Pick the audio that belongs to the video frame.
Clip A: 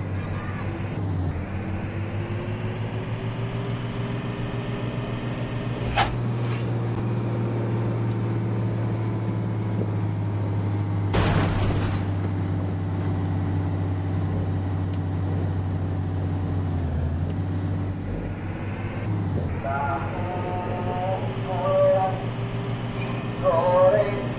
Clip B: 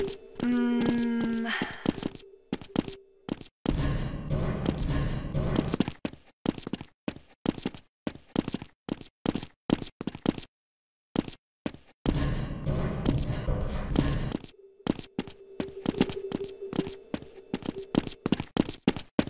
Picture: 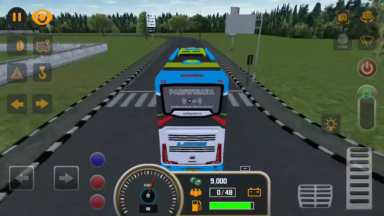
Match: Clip A